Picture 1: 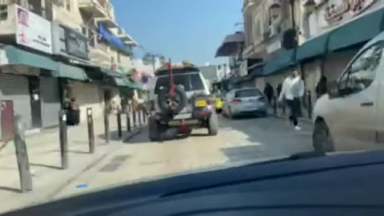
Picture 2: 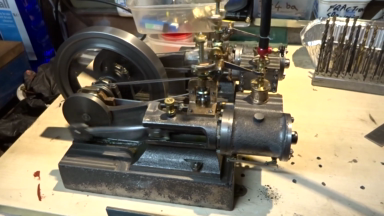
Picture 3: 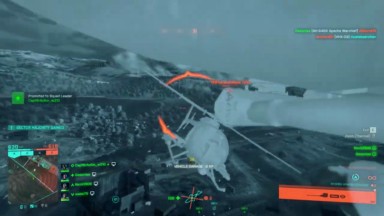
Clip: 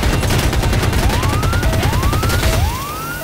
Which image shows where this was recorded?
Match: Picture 3